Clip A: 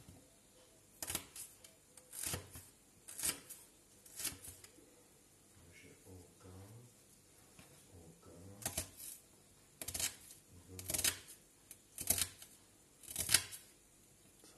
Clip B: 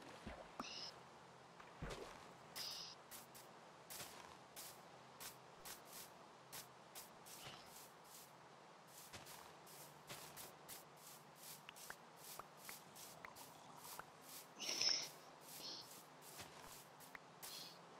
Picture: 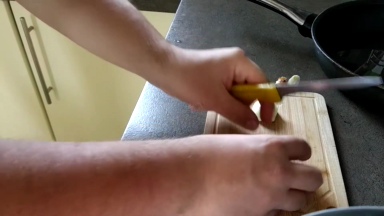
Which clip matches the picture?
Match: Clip A